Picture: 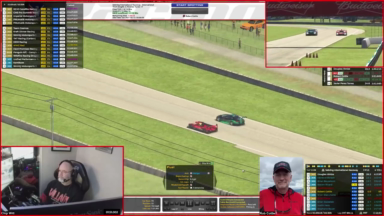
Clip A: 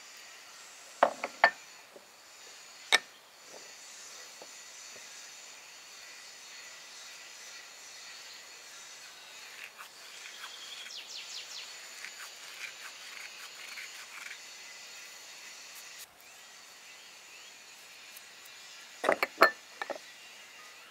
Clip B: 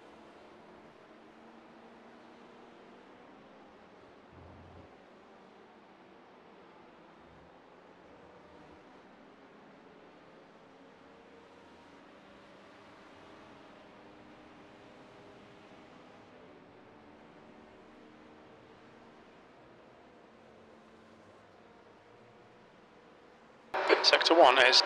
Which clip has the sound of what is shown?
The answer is B